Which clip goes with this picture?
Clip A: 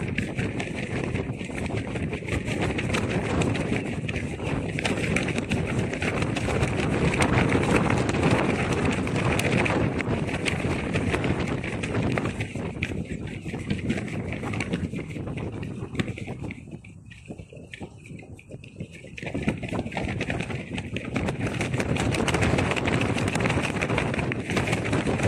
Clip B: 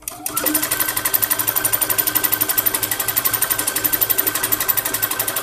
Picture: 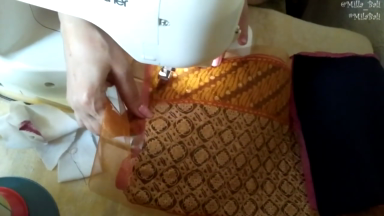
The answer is B